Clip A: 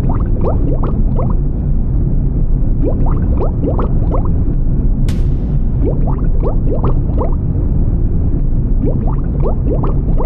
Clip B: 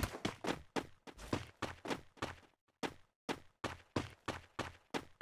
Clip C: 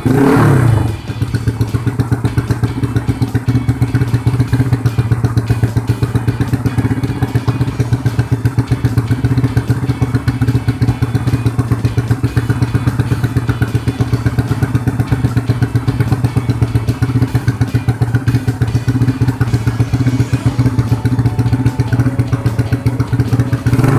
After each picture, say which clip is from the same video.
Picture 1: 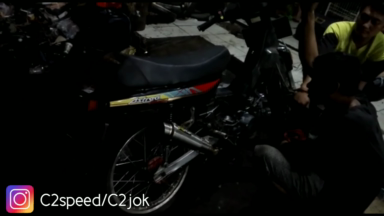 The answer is C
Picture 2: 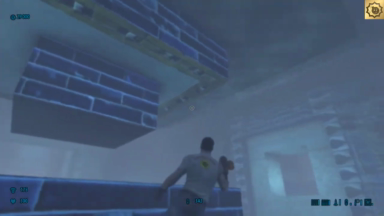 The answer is A